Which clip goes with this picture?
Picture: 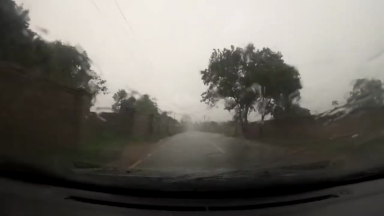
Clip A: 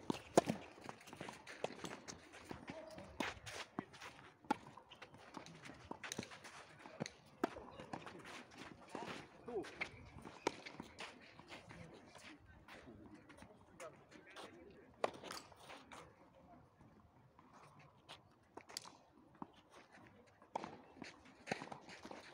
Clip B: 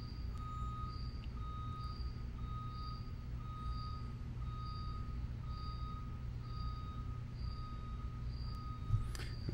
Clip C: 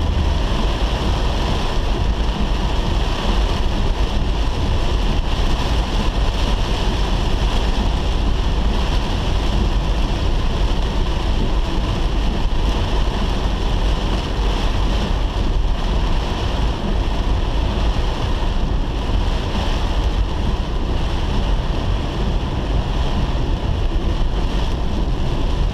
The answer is C